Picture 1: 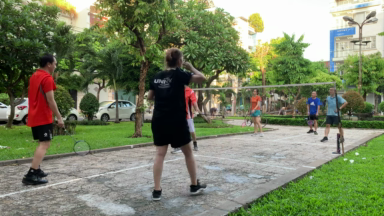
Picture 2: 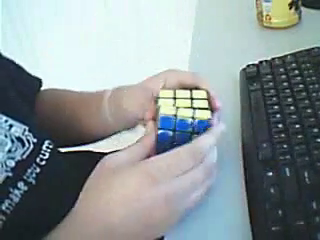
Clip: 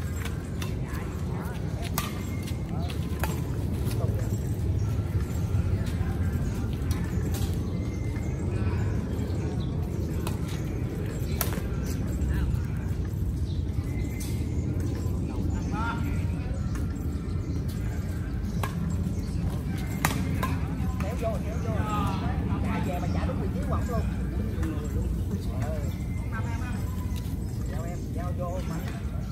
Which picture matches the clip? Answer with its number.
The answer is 1